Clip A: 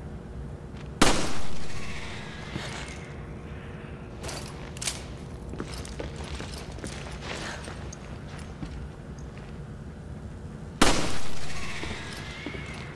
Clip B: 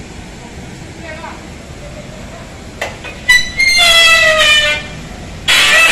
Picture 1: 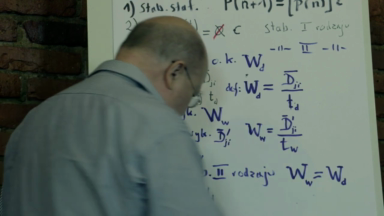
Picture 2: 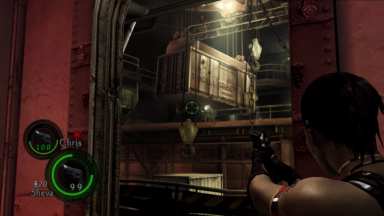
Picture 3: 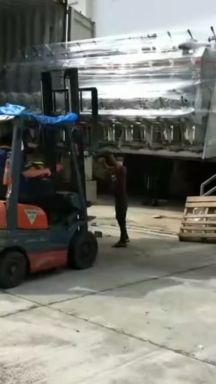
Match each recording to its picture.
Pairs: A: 2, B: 3